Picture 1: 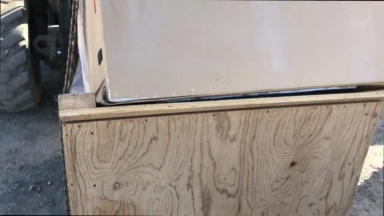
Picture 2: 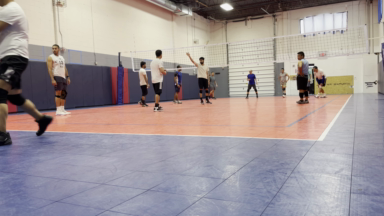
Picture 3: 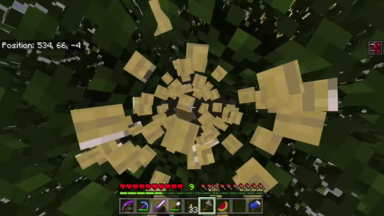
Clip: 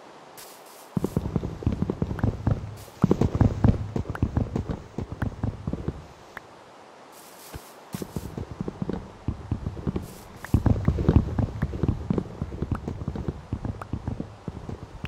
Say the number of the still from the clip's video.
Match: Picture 3